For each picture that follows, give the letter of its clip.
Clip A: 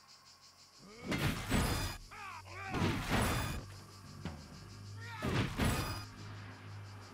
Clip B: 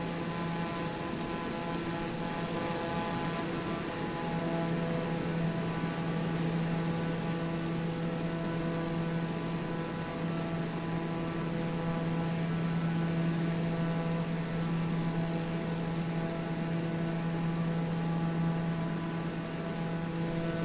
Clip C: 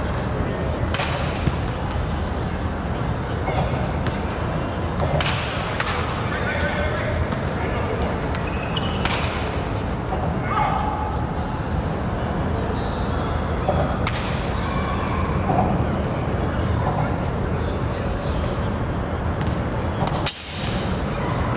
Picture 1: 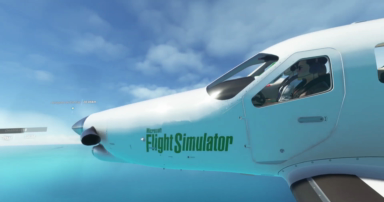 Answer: B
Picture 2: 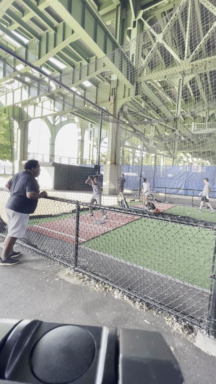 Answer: C